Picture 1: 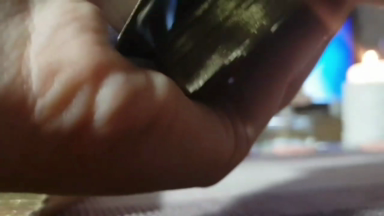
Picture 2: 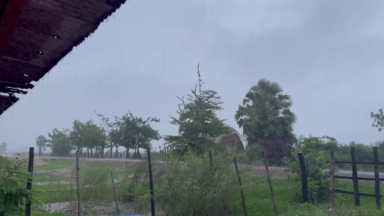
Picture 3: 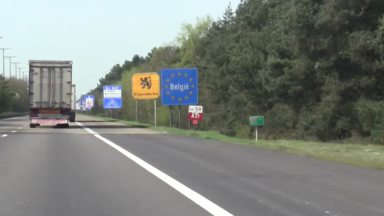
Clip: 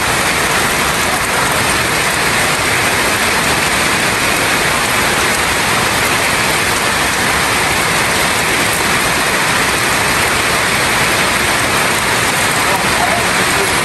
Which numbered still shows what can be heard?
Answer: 2